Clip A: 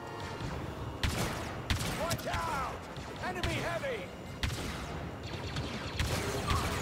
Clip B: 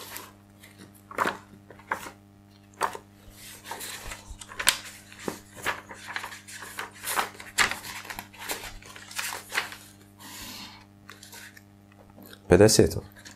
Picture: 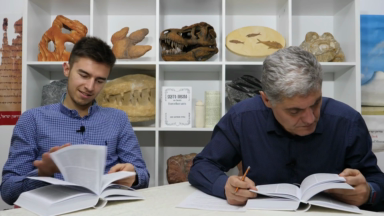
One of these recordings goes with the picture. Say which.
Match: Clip B